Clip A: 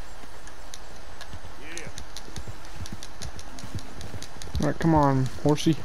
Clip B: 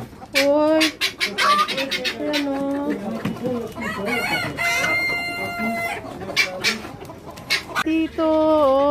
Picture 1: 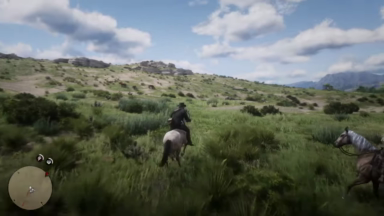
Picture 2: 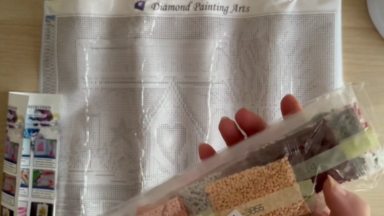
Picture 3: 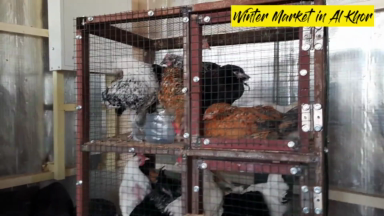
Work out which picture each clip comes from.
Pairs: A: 1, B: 3